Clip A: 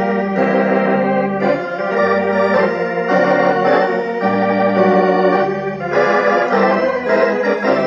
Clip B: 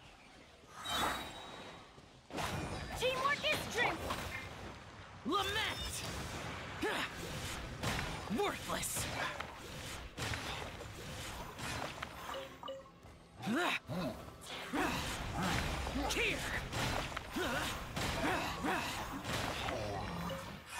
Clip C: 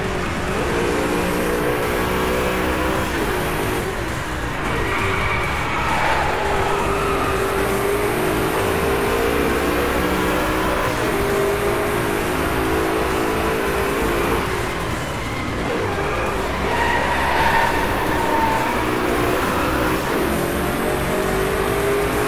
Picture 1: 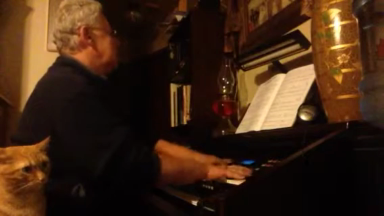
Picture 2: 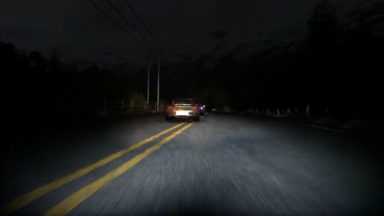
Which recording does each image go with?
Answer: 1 A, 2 C